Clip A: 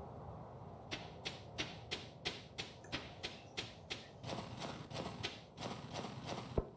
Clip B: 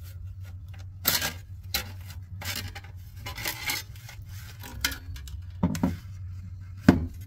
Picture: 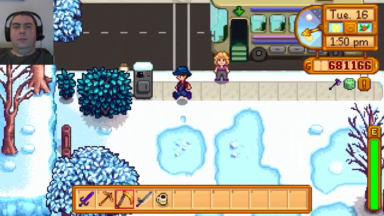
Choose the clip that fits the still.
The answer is A